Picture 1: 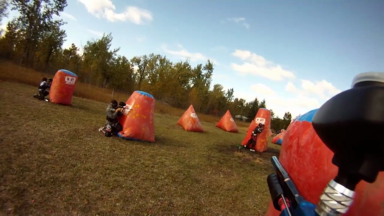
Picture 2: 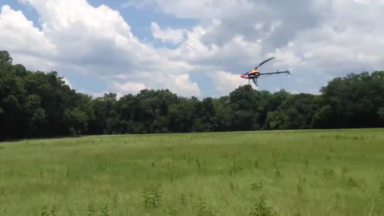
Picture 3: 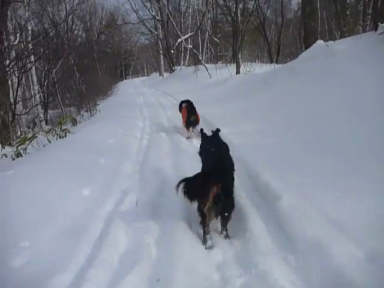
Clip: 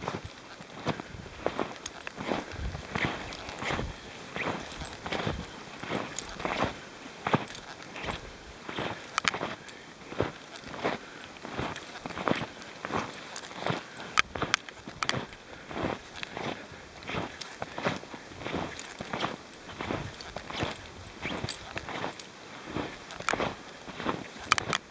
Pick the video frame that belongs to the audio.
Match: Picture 3